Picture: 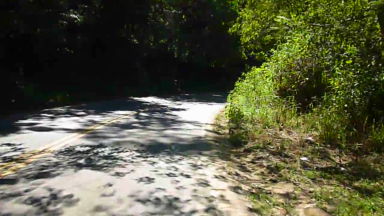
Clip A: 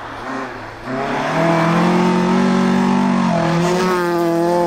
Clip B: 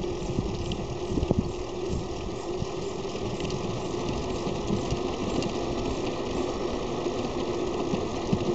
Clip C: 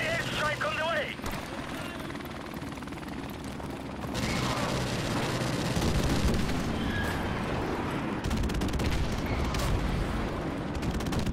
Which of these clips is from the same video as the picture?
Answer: B